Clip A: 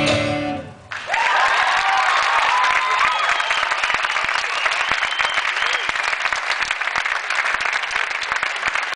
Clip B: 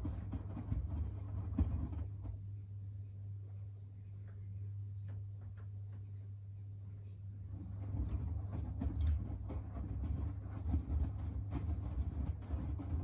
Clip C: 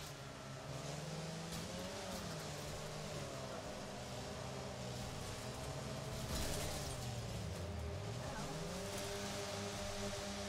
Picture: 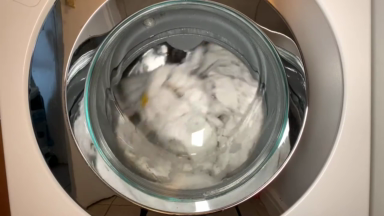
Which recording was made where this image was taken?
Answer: B